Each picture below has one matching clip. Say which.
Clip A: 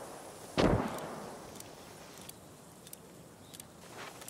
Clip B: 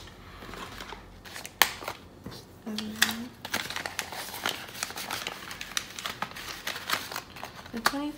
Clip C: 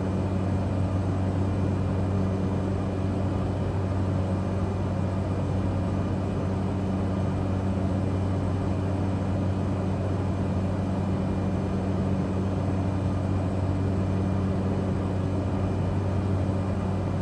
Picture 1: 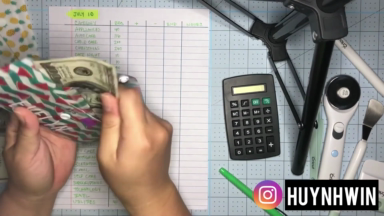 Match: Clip B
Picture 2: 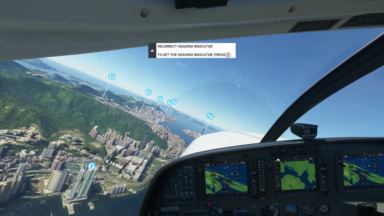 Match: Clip C